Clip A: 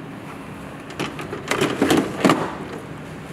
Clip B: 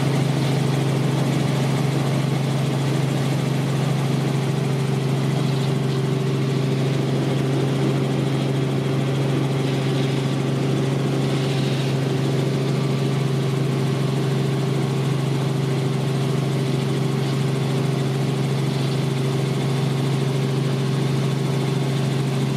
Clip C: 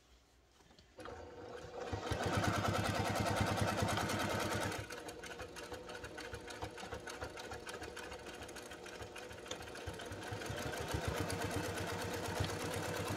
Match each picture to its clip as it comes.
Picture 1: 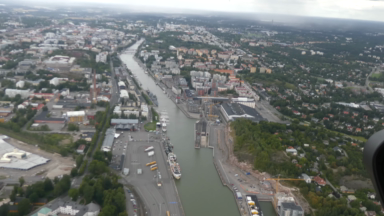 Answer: B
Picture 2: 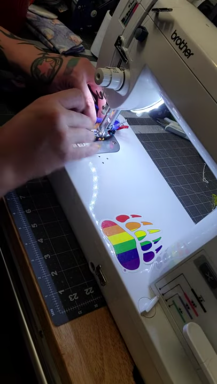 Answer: C